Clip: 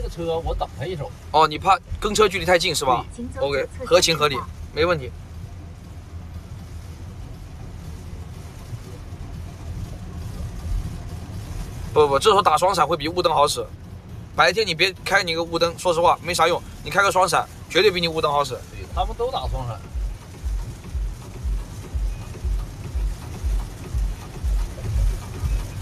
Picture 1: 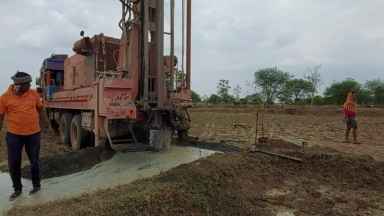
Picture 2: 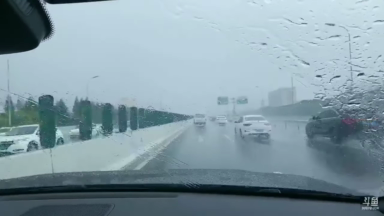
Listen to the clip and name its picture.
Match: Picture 2